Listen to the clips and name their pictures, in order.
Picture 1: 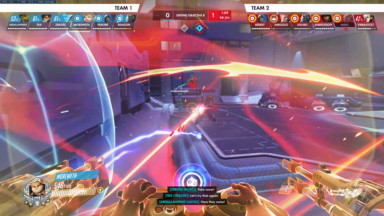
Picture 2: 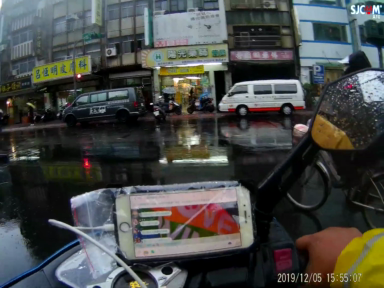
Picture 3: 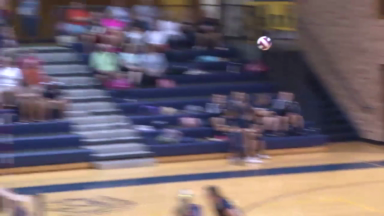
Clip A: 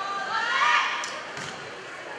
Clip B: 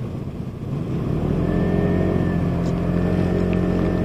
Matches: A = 3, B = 2